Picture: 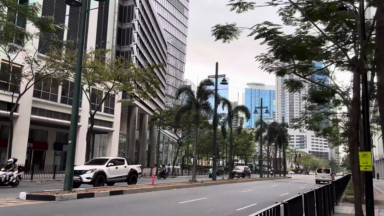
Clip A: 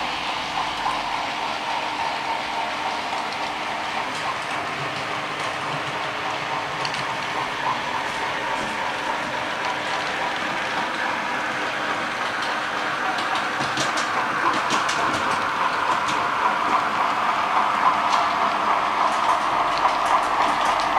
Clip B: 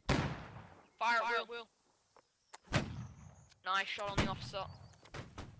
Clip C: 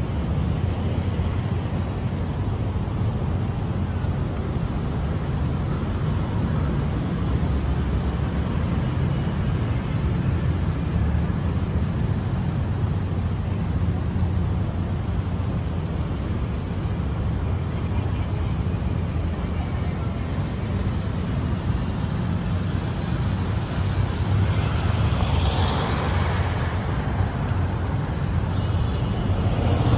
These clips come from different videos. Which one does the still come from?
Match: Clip C